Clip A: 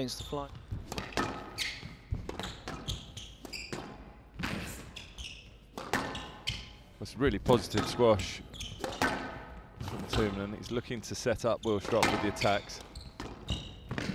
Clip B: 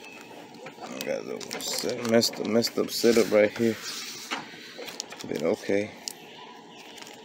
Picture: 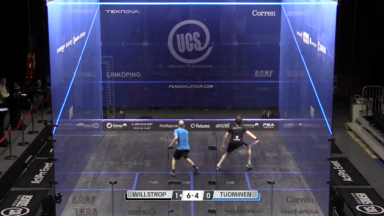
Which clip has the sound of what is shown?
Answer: A